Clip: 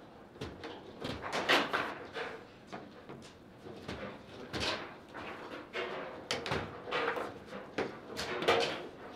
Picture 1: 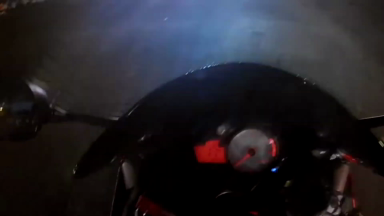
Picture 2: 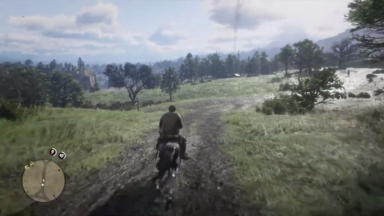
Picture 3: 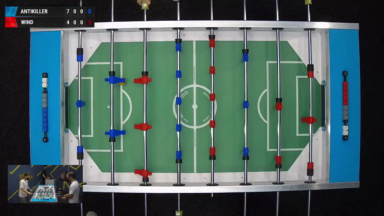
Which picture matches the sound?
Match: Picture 3